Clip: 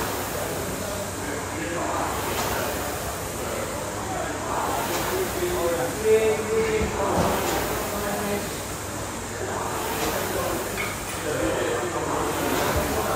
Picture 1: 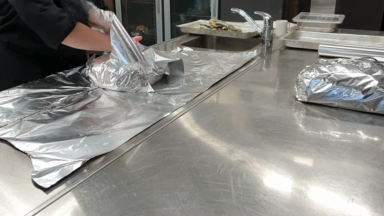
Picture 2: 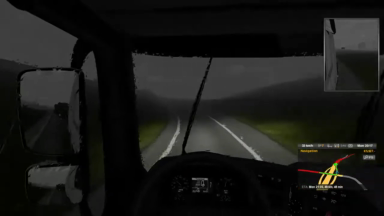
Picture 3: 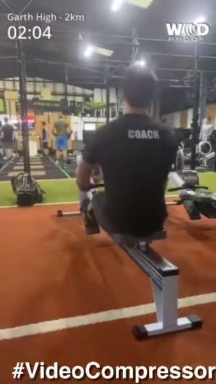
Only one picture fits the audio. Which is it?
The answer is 3